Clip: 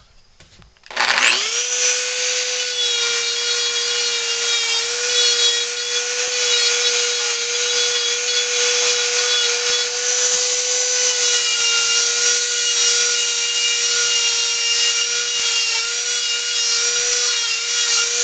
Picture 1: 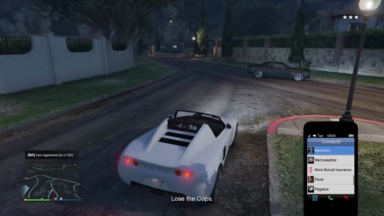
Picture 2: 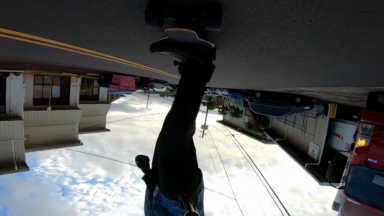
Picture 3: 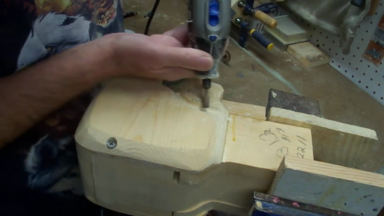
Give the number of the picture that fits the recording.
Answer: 3